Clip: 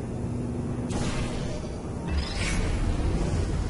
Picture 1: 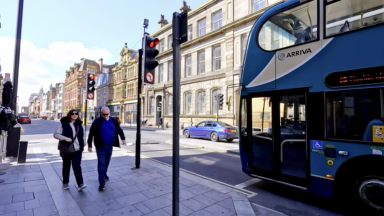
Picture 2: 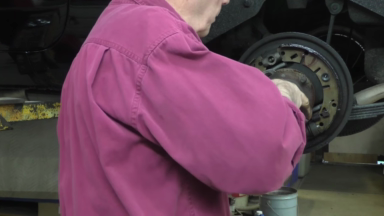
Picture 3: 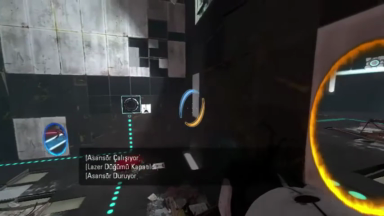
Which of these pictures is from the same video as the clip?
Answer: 3